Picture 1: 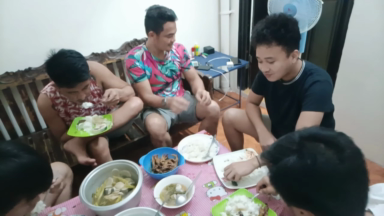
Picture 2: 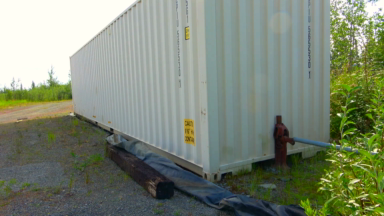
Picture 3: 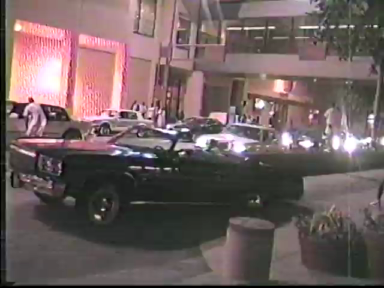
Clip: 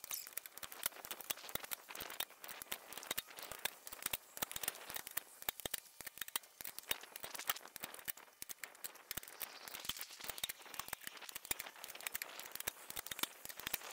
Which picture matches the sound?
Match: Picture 2